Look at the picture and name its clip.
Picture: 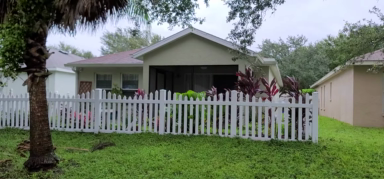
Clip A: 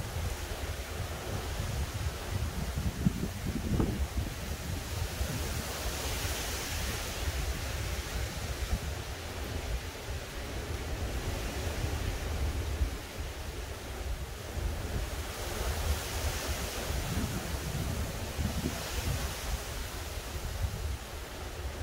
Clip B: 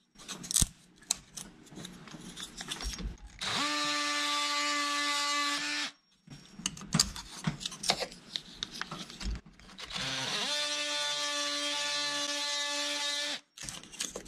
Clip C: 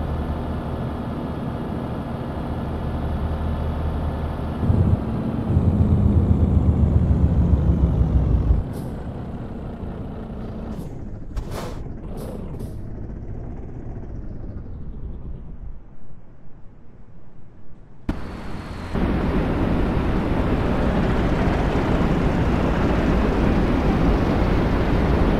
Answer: A